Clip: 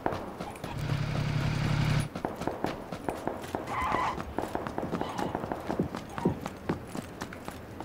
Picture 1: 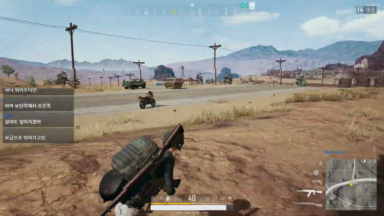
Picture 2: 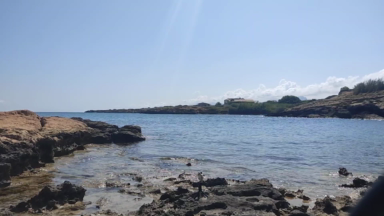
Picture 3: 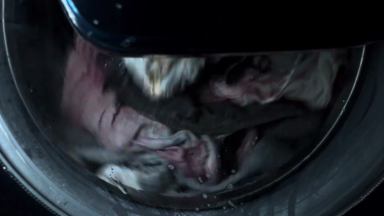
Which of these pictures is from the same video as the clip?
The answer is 1